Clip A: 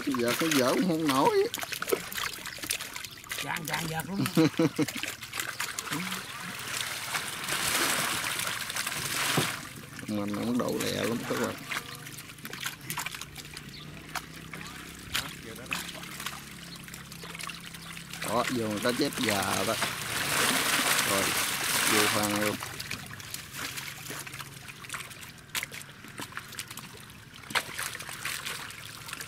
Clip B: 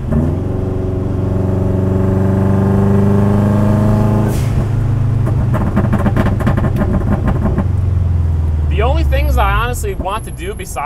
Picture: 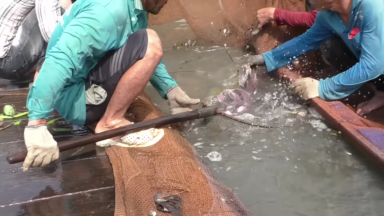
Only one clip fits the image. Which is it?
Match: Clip A